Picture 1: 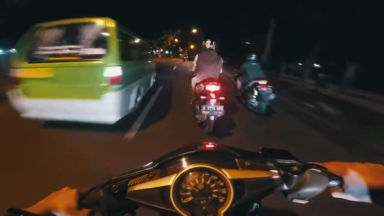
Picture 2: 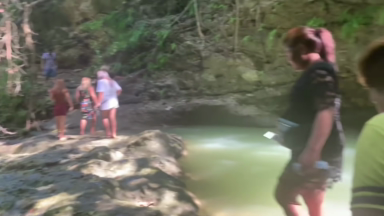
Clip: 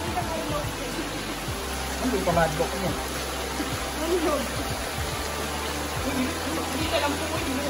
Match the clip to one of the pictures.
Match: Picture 2